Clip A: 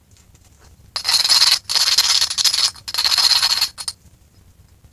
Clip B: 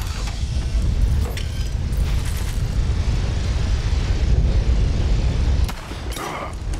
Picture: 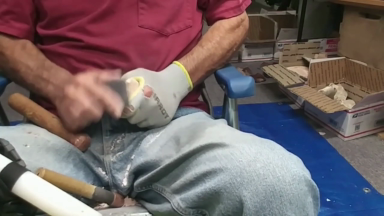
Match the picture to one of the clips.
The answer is A